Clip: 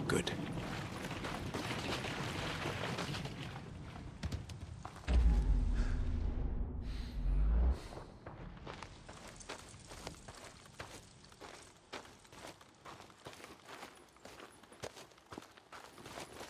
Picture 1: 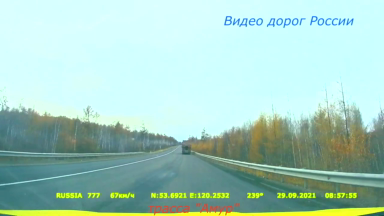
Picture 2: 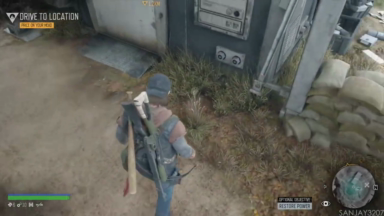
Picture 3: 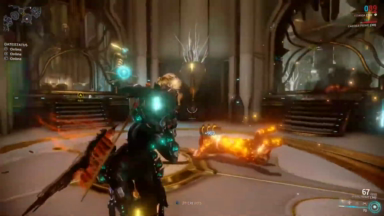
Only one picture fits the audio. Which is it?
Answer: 2